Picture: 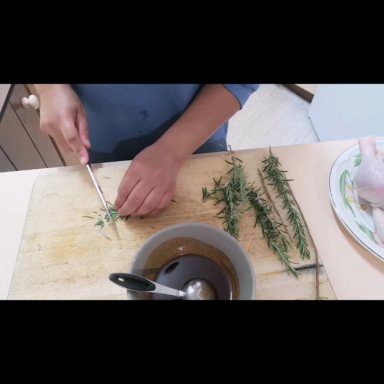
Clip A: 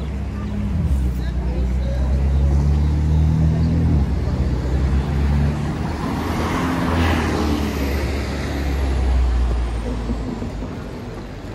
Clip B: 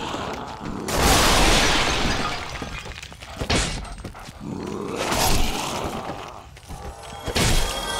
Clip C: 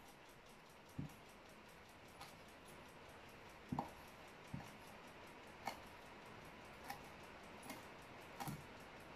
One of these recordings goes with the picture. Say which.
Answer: C